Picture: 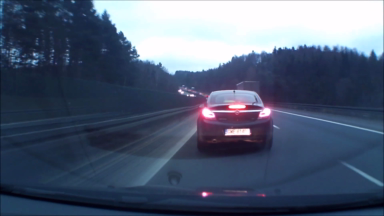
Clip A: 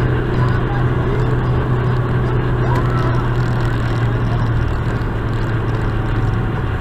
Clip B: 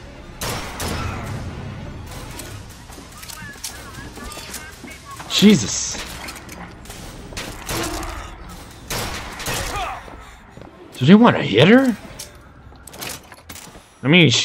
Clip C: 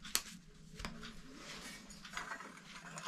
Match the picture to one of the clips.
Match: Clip A